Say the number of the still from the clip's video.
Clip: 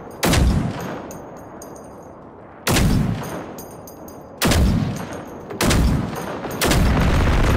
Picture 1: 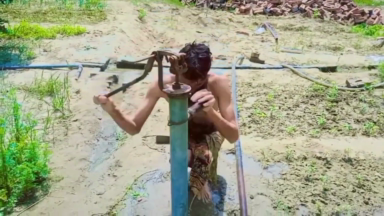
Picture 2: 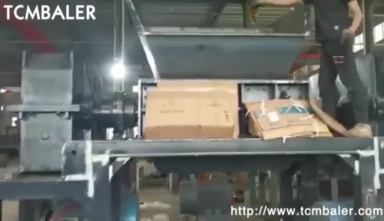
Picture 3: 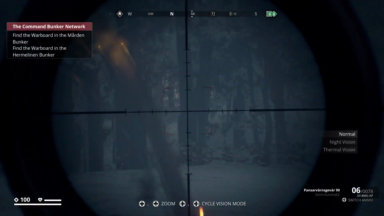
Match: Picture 3